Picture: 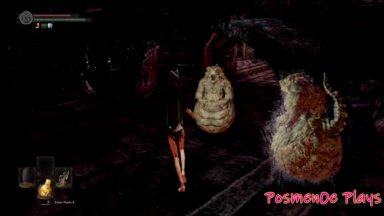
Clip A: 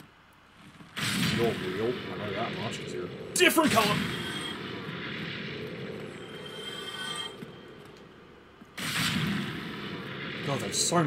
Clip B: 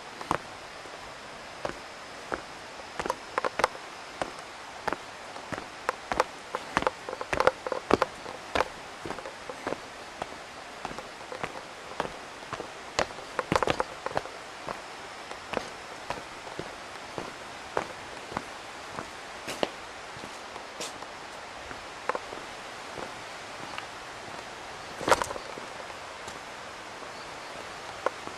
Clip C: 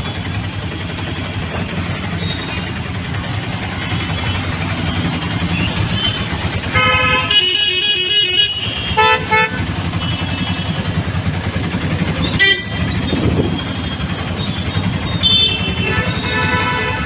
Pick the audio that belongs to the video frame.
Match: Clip A